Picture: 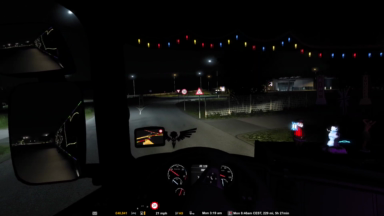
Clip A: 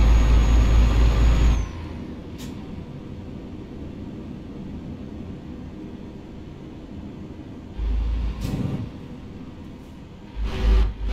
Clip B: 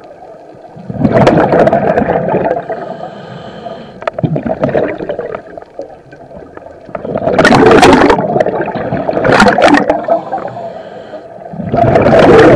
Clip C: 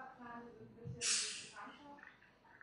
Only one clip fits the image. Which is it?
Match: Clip A